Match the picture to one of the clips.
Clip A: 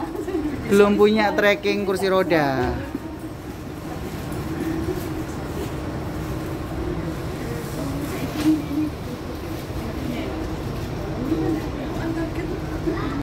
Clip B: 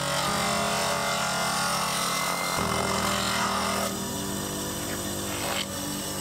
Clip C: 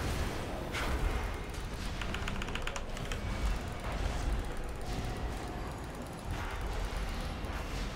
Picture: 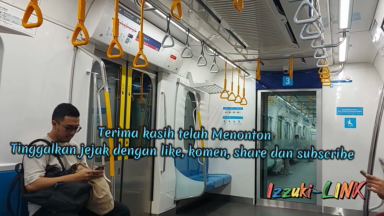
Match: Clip A